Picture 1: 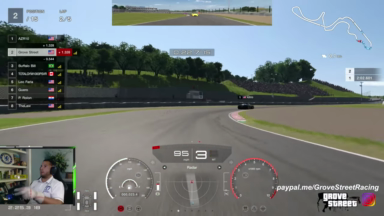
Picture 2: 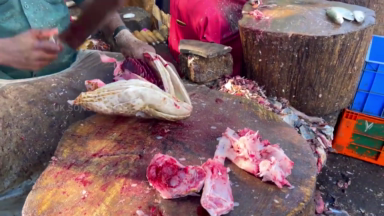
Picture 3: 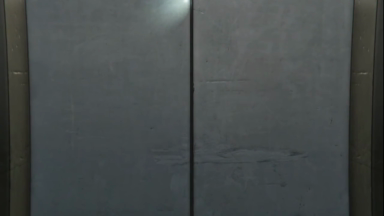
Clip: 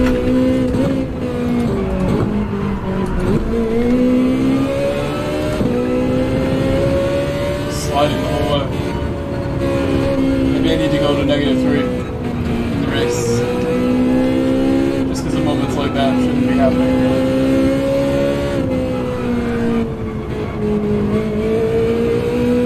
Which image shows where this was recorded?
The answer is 1